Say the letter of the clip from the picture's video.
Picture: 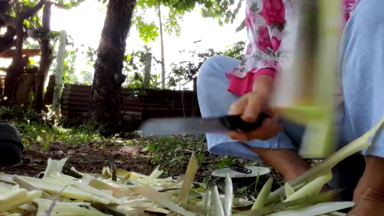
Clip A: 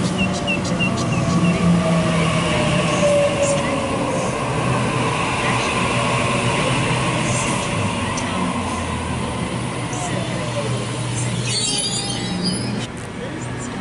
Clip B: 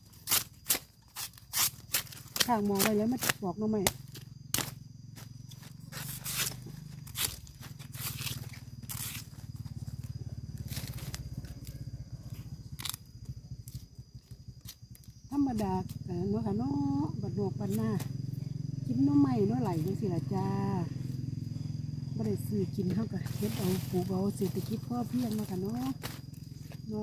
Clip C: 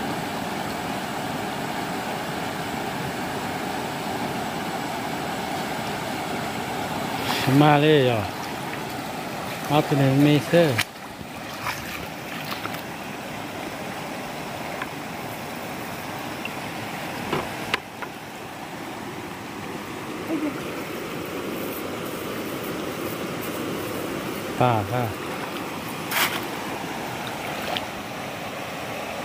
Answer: B